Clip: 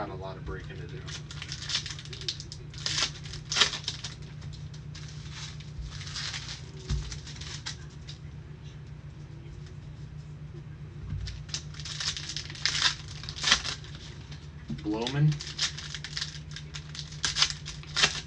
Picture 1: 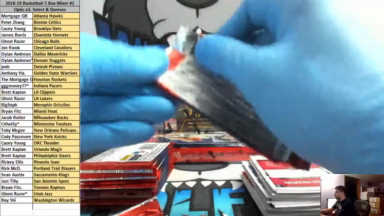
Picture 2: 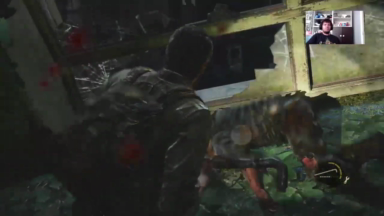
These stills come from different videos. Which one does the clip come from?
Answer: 1